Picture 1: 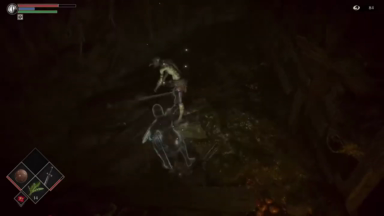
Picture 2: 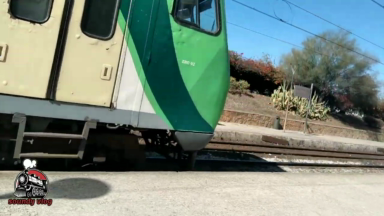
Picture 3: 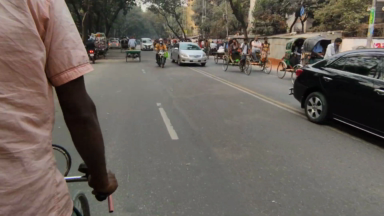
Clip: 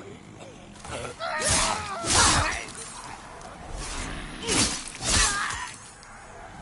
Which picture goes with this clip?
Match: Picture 1